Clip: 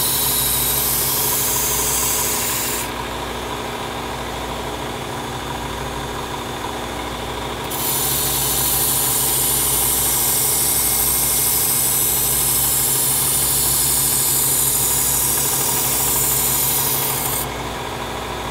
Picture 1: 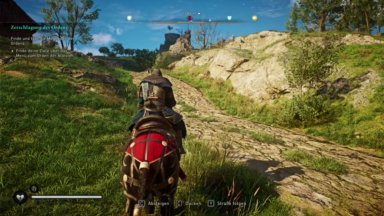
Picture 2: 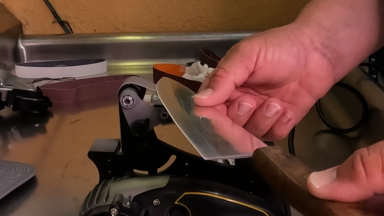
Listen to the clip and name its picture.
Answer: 2